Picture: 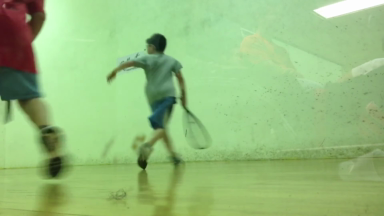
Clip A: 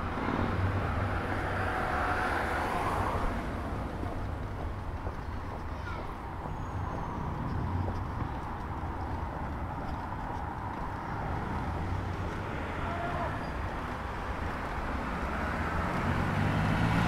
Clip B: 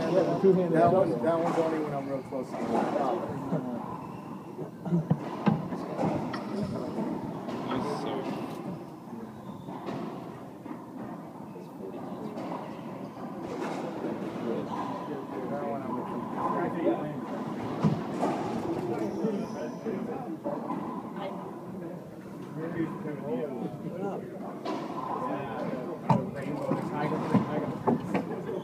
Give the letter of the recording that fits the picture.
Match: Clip B